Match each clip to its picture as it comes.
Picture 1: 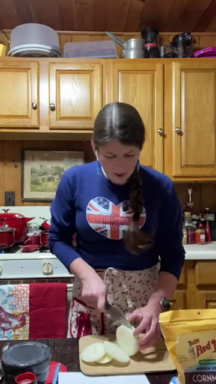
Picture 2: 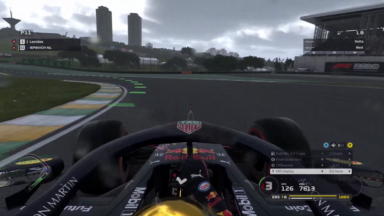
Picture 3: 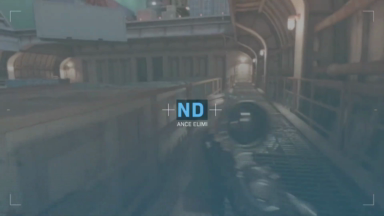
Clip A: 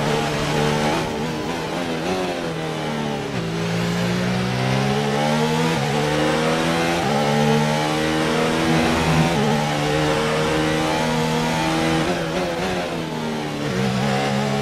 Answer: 2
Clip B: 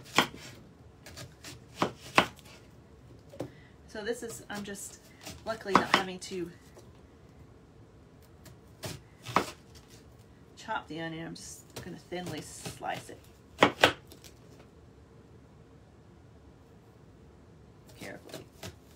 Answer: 1